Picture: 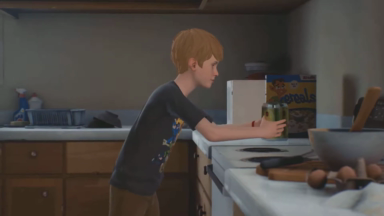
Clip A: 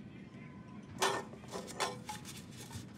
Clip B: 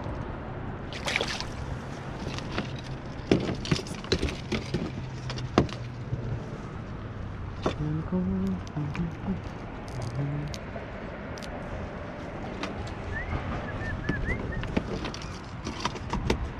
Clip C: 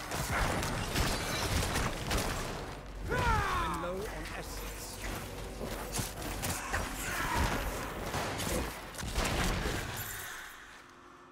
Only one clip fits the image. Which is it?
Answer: A